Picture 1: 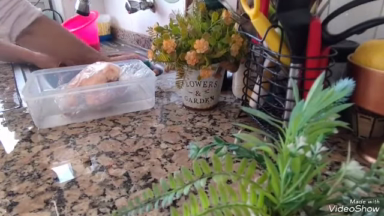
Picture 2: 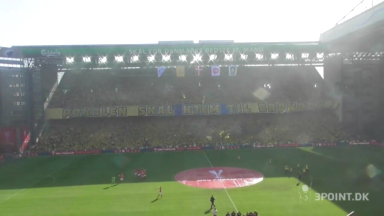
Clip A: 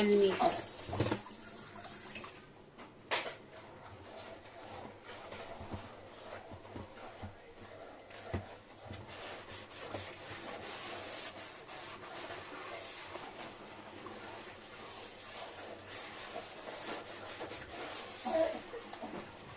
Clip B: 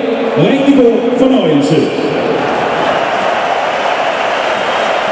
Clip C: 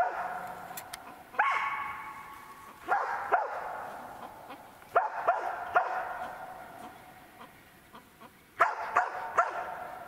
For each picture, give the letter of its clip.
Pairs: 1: A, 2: B